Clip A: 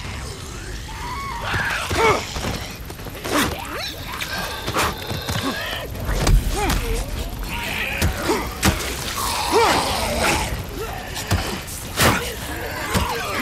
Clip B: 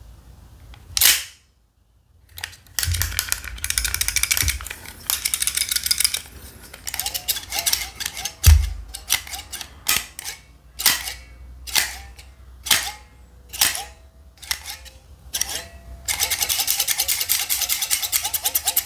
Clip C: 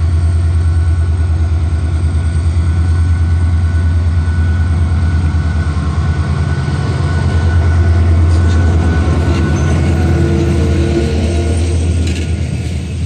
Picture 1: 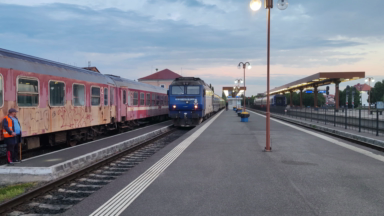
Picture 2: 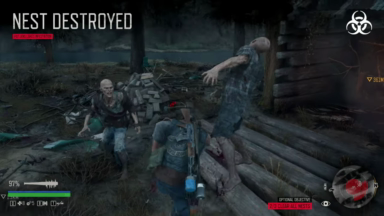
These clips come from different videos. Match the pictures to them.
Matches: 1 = C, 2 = A